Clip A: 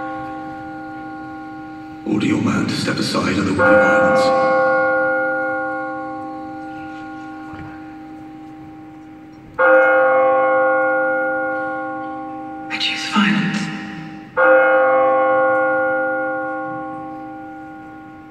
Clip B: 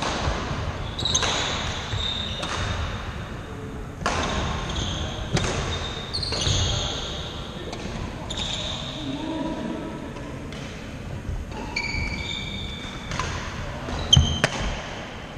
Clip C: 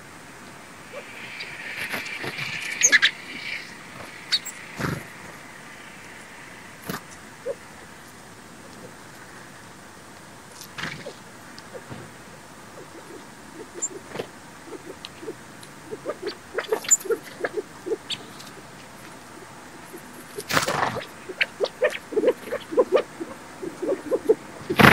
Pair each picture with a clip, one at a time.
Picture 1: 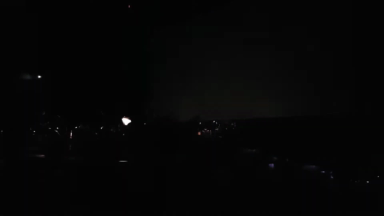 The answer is A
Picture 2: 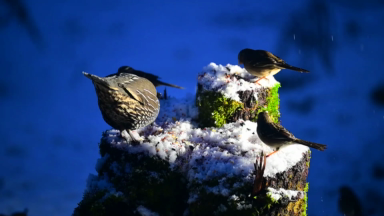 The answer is C